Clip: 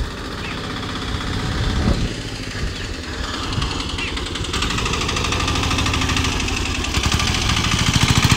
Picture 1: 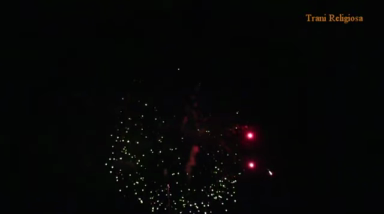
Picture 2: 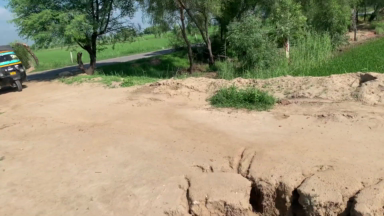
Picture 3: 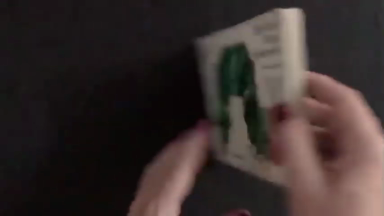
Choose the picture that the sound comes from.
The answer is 2